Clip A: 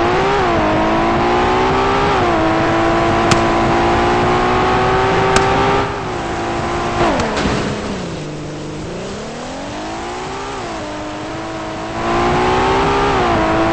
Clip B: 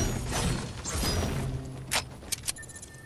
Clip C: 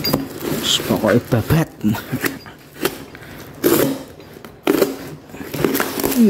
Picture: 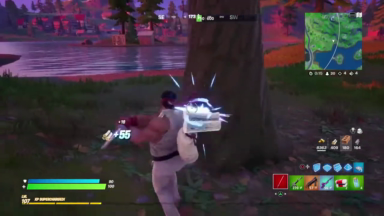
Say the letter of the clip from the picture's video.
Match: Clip B